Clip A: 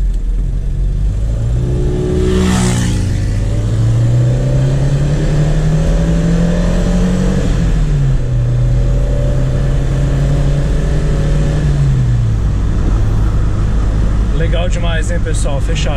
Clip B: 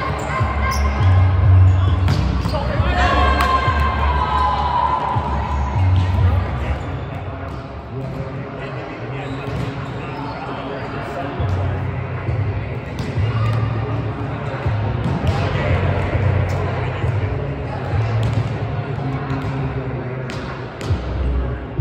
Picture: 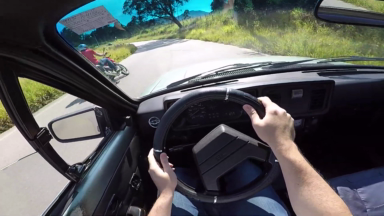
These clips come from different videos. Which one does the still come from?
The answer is A